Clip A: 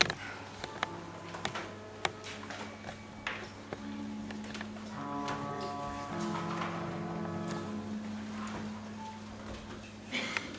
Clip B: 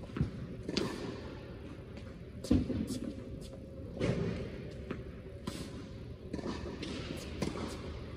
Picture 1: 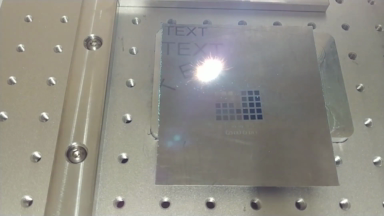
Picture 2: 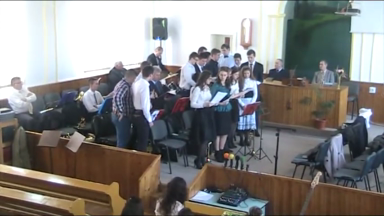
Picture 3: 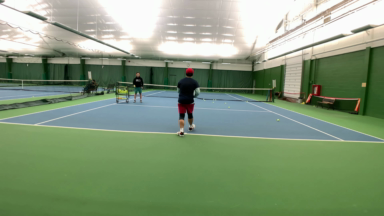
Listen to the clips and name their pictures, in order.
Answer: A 2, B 3